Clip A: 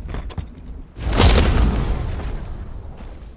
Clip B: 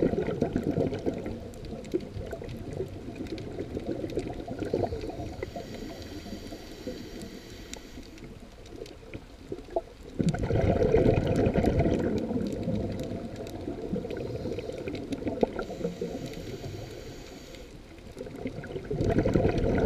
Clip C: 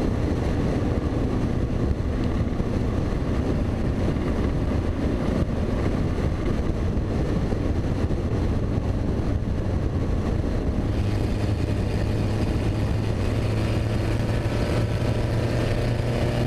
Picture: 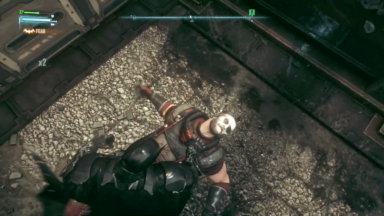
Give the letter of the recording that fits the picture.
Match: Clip A